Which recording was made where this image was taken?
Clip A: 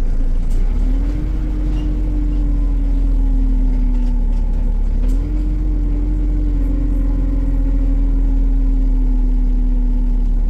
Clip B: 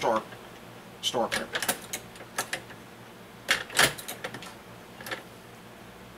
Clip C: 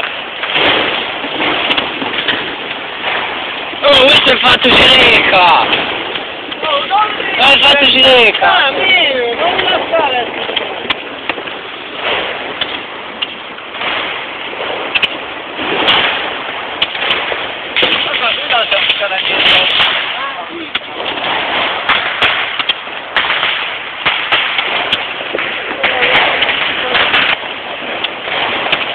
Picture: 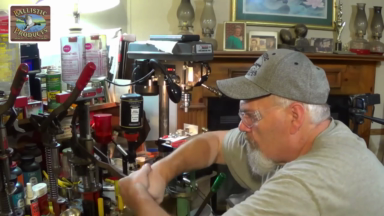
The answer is B